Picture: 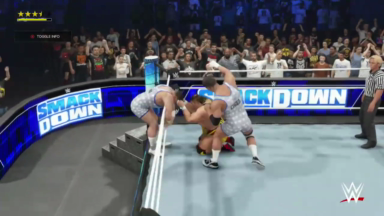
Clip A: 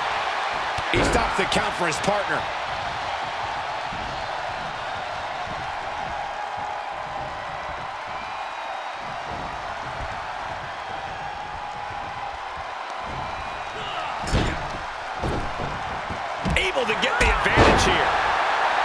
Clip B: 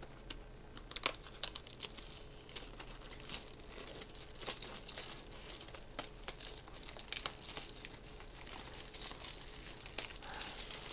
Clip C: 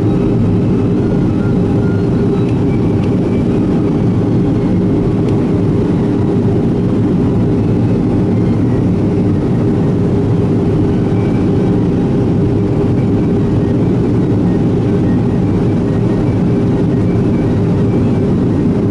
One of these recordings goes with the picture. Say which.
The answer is A